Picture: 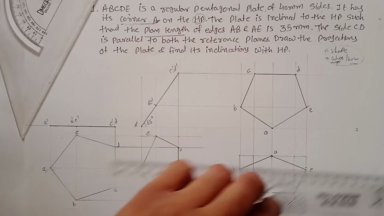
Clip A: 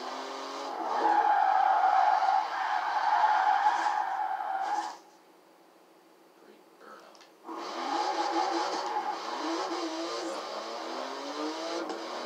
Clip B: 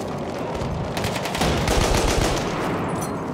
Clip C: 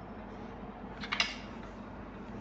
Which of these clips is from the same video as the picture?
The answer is C